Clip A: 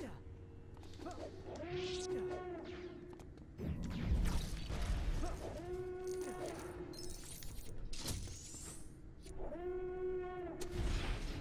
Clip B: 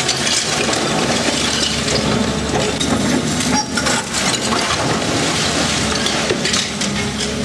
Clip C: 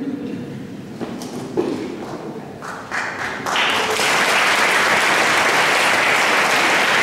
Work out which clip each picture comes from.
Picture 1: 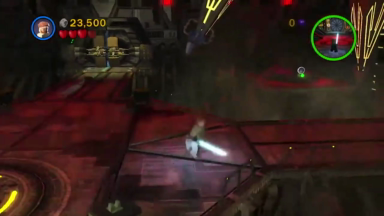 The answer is A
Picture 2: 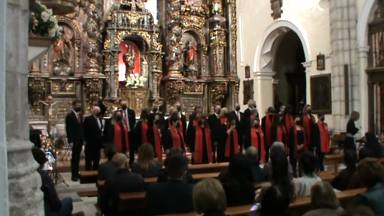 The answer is C